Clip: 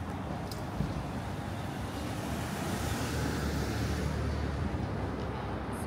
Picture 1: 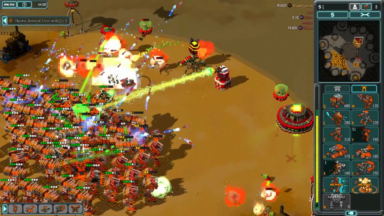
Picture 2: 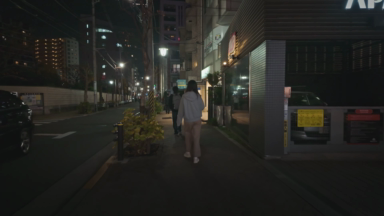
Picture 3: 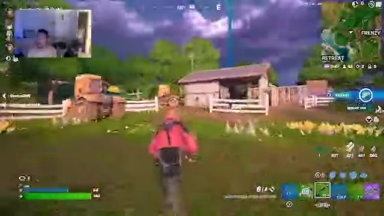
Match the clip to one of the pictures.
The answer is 2